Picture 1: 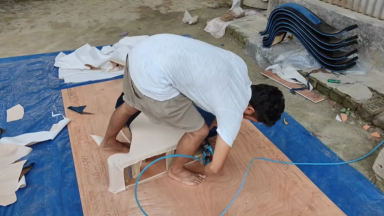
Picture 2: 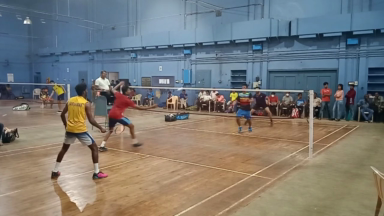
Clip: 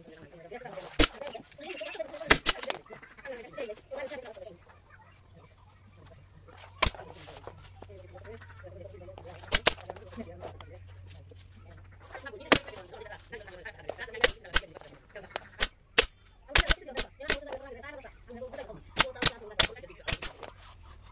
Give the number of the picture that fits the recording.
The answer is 1